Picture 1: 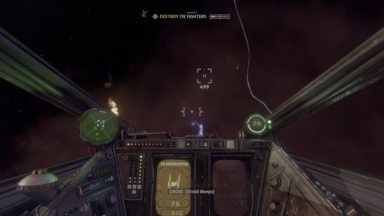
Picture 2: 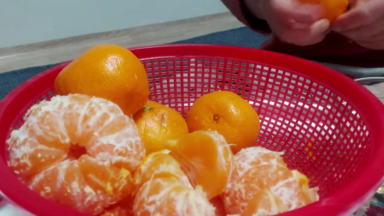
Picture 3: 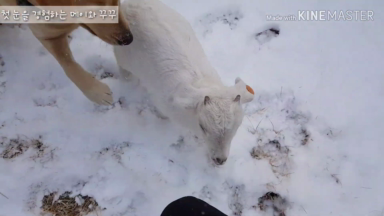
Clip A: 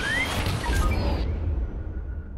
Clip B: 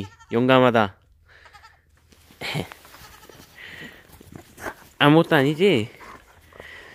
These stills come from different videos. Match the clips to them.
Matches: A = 1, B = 3